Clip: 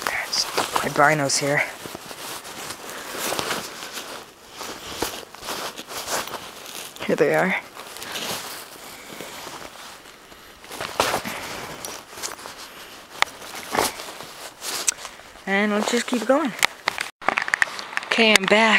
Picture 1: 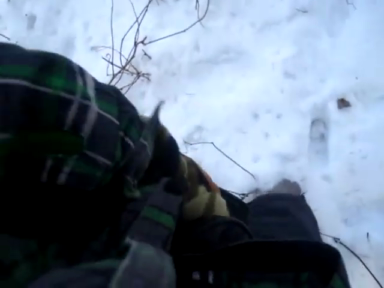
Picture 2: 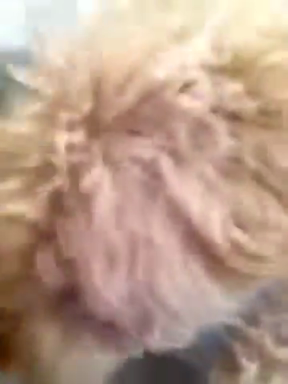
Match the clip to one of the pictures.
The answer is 1